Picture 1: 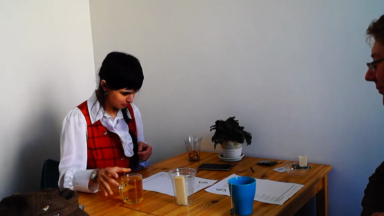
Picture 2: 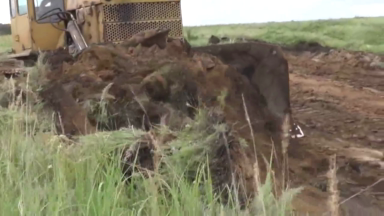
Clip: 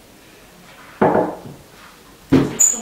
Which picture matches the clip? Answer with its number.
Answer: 1